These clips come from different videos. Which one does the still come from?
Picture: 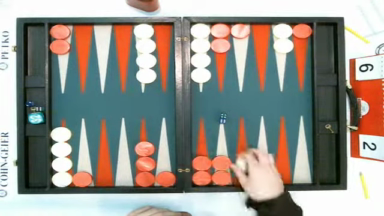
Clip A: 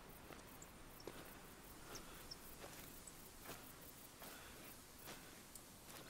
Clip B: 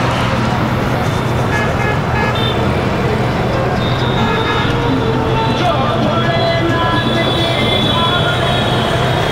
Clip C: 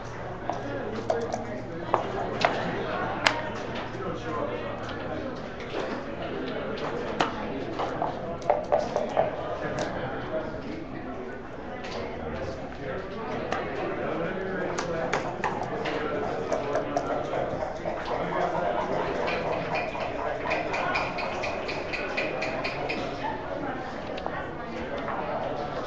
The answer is C